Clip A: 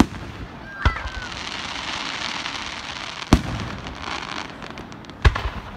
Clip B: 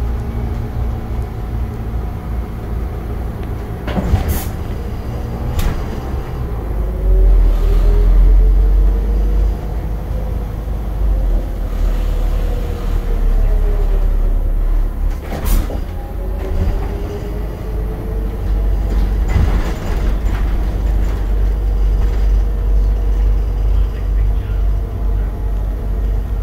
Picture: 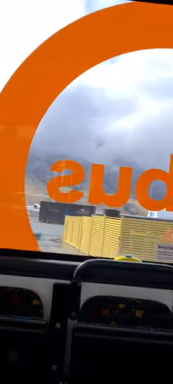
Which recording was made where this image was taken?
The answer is B